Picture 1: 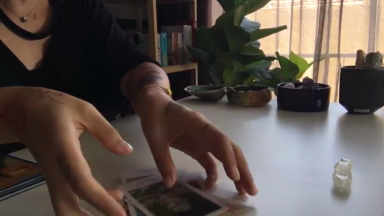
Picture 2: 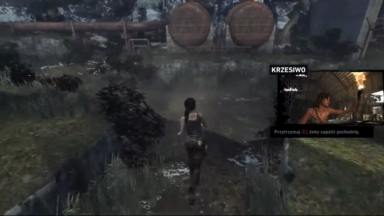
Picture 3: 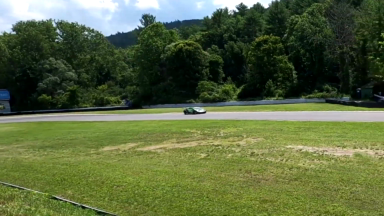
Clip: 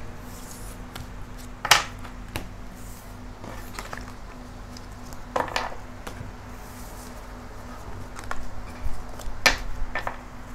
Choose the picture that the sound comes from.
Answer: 1